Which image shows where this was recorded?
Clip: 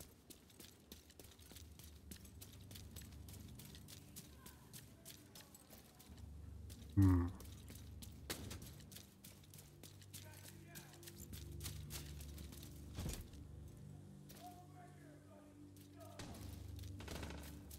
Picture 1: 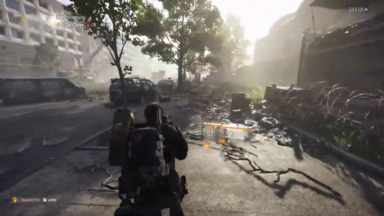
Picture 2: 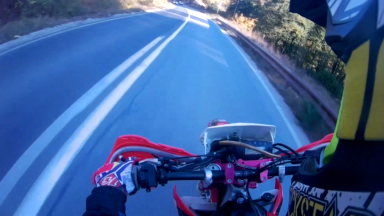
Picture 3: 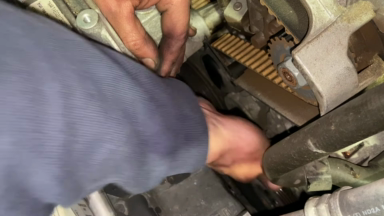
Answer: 1